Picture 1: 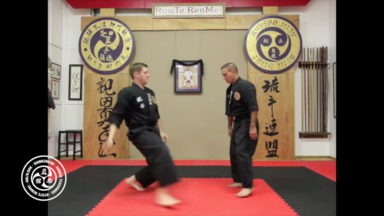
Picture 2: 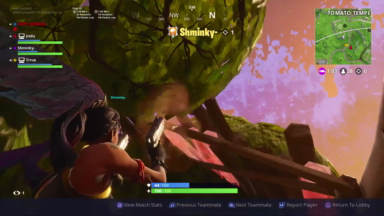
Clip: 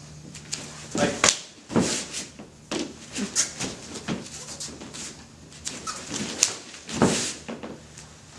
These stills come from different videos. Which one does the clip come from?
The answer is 1